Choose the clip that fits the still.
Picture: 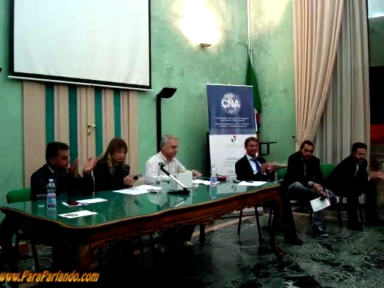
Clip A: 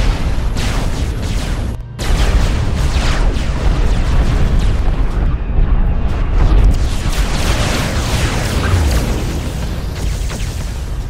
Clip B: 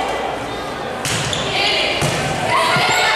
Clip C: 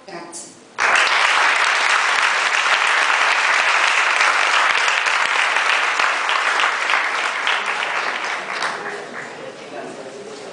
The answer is C